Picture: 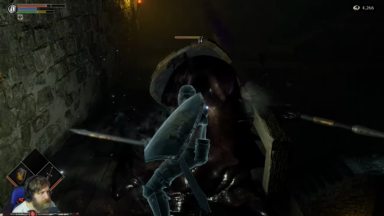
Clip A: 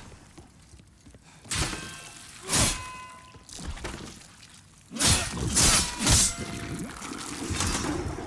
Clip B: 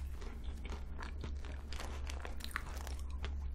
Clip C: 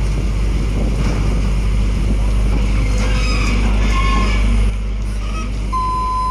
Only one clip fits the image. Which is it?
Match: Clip A